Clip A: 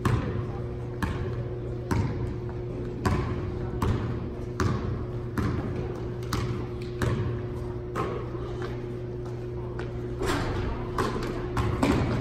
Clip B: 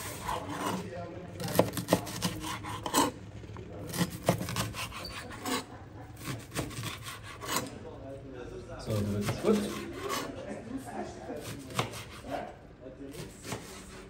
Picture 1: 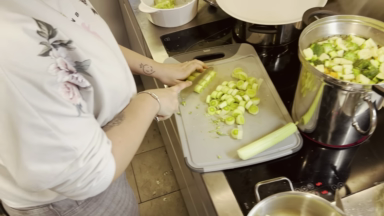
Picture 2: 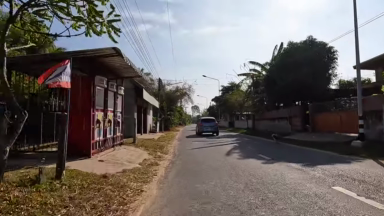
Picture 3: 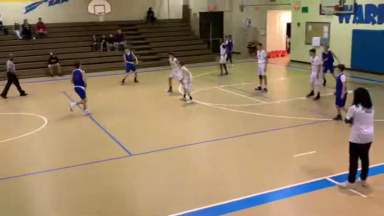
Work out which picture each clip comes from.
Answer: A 3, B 1